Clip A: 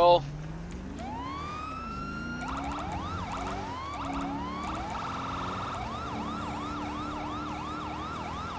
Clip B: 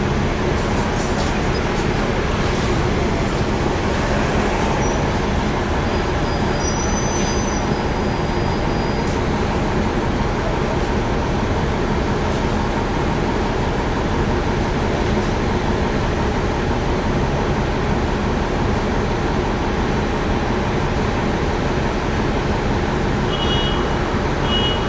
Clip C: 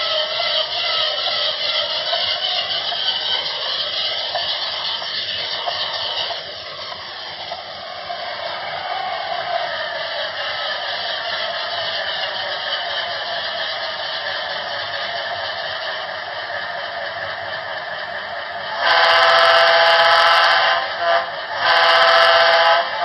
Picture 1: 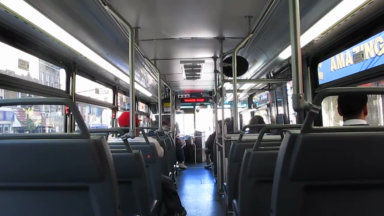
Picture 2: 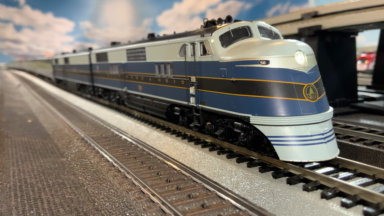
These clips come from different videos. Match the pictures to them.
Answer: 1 B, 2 C